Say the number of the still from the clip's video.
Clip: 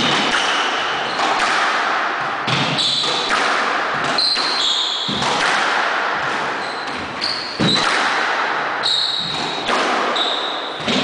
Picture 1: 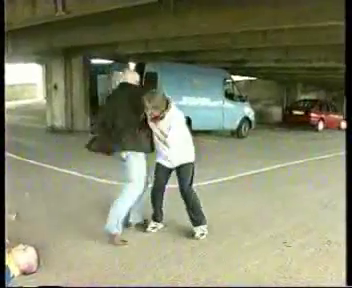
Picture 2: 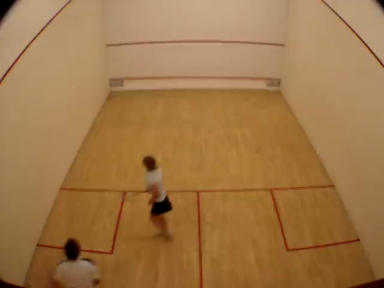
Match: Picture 2